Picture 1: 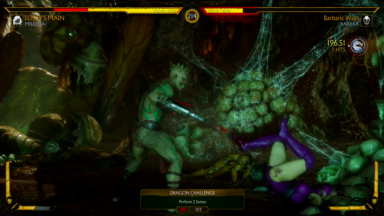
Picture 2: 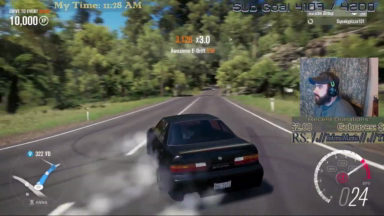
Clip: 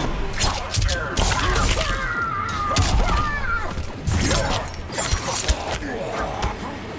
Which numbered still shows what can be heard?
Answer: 1